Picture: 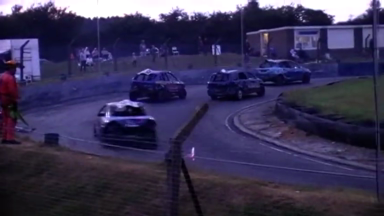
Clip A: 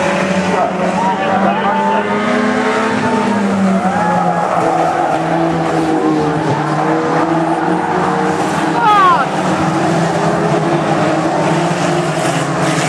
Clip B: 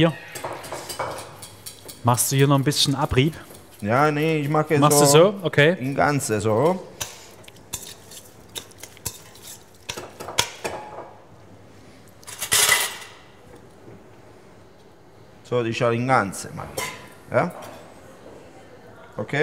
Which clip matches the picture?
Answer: A